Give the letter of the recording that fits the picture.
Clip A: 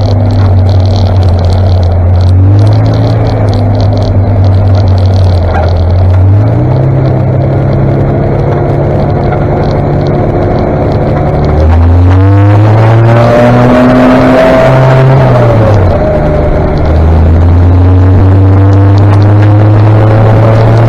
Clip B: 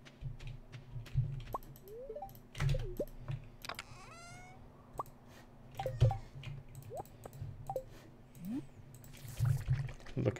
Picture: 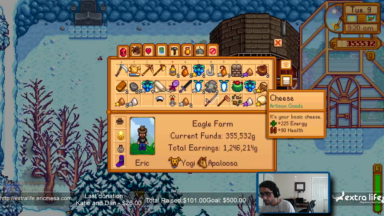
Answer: B